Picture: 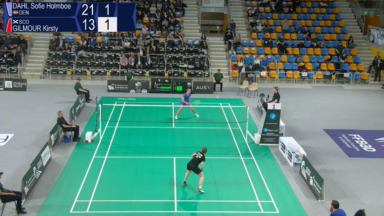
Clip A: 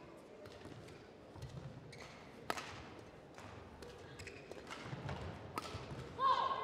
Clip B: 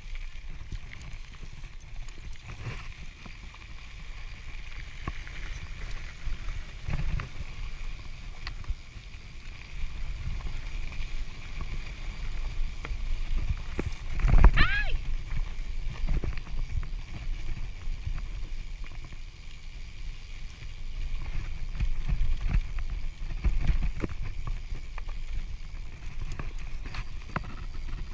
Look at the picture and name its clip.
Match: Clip A